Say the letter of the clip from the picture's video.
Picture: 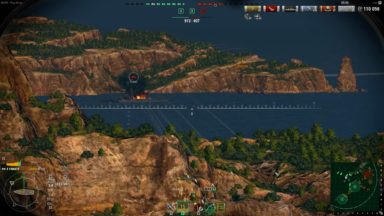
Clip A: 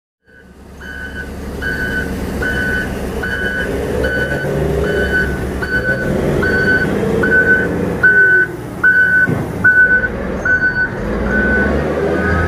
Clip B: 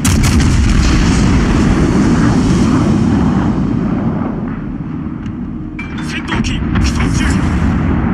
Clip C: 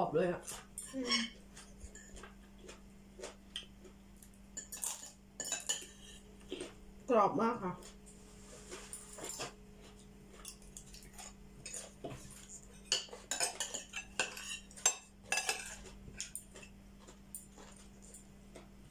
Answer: B